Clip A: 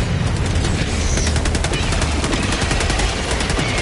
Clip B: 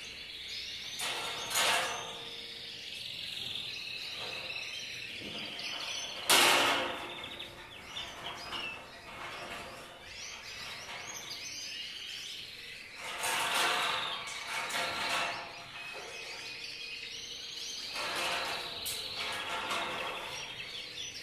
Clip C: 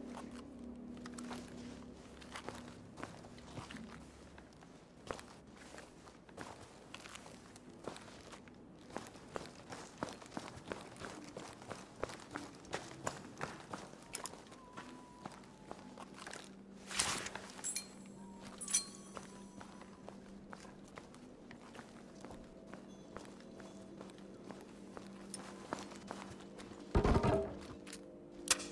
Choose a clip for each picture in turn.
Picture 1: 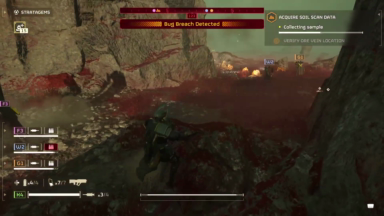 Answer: A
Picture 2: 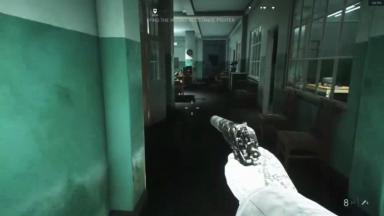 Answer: C